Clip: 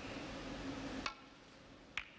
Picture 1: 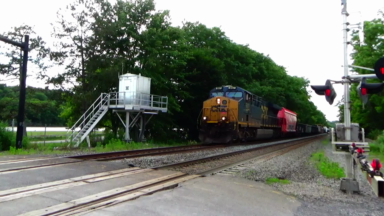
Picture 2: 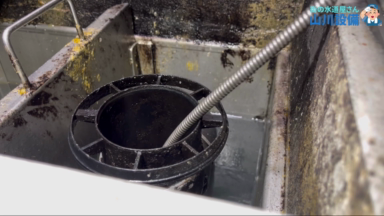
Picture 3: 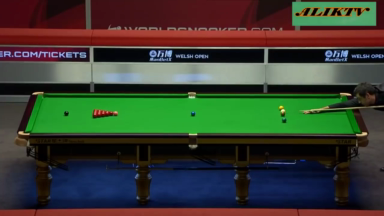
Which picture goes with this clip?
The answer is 3